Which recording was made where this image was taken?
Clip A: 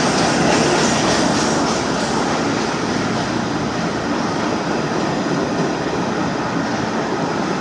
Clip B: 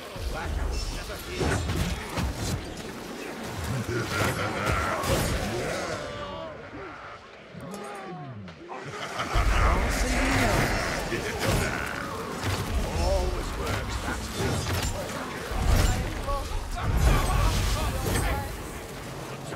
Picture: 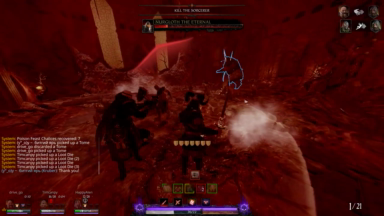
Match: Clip B